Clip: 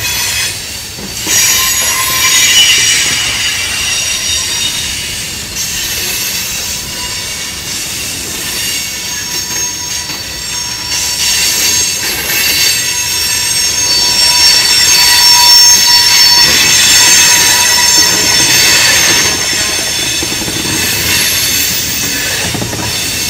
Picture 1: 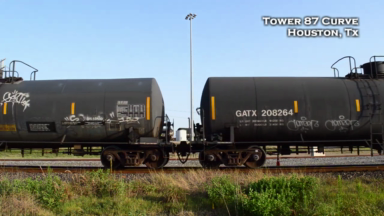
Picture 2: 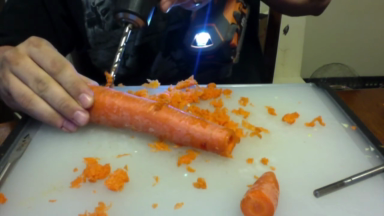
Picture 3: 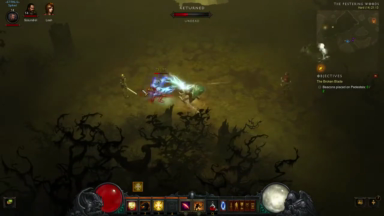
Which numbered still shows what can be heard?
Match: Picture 1